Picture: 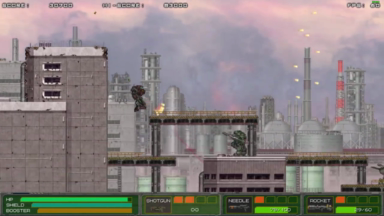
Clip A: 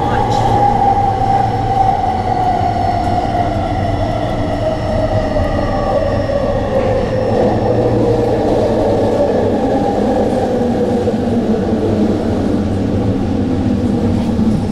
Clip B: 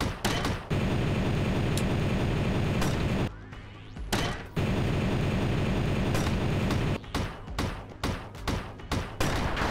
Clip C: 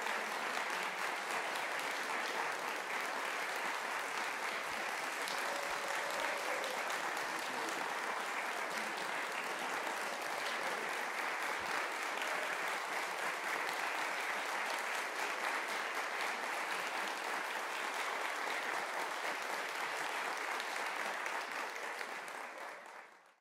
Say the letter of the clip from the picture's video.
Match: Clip B